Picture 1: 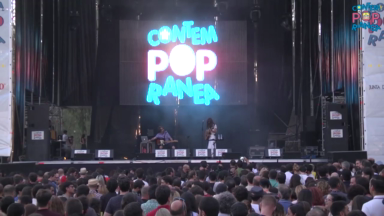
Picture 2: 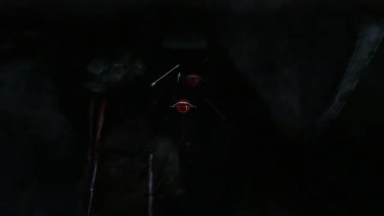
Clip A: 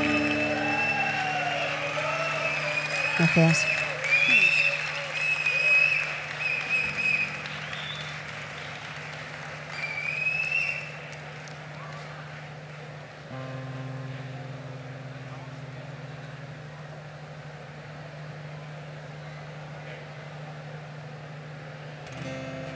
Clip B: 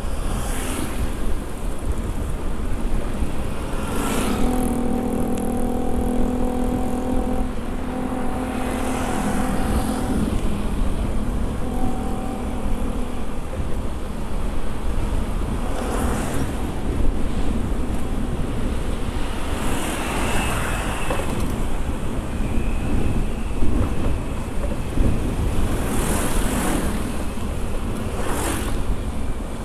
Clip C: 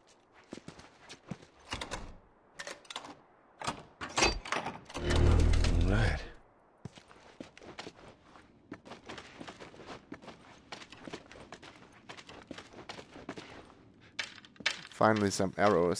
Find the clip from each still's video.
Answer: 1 A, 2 C